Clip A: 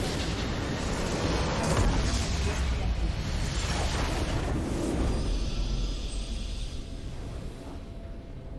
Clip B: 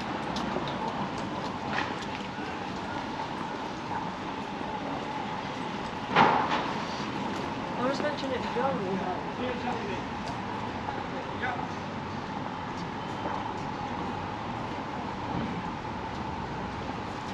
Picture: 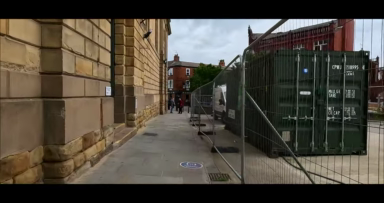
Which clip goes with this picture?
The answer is B